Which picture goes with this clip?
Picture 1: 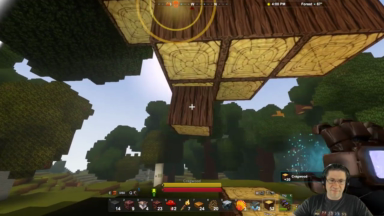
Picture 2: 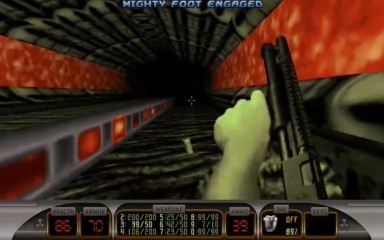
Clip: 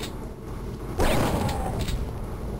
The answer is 2